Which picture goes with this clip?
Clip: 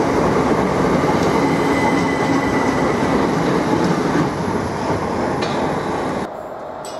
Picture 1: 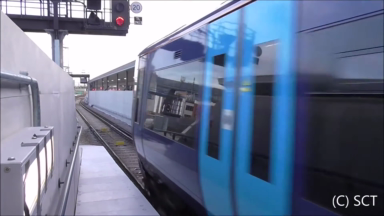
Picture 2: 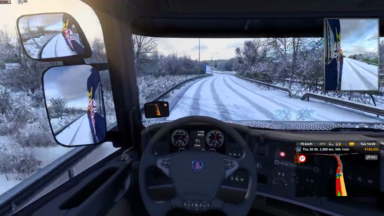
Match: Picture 1